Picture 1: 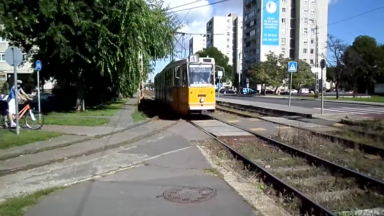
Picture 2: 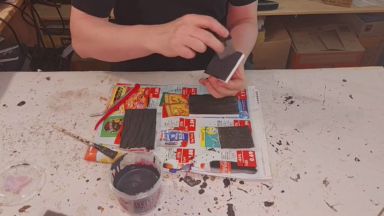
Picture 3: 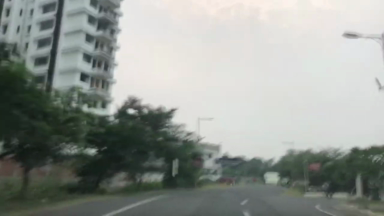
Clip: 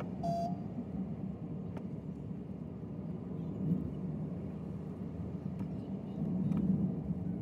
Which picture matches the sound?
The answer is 3